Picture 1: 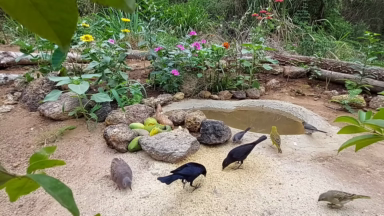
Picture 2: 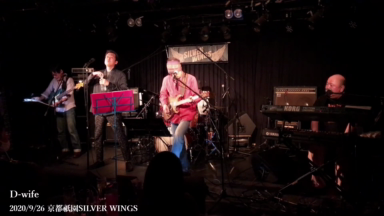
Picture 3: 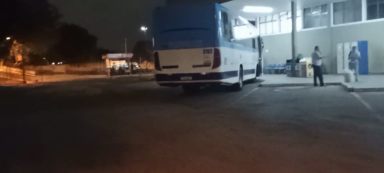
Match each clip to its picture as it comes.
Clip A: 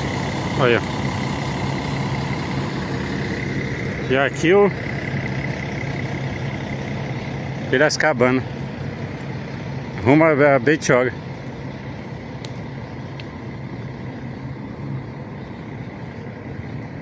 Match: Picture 3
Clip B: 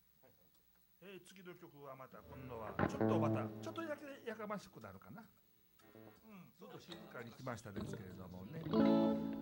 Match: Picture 2